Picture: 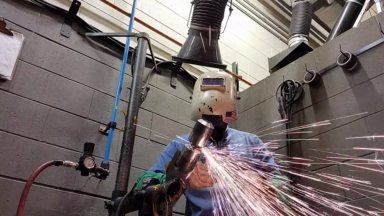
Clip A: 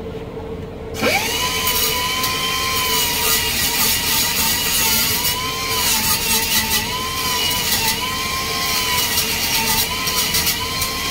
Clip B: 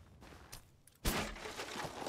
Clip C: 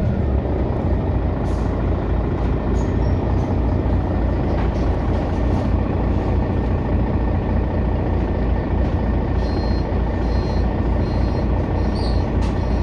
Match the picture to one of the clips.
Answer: A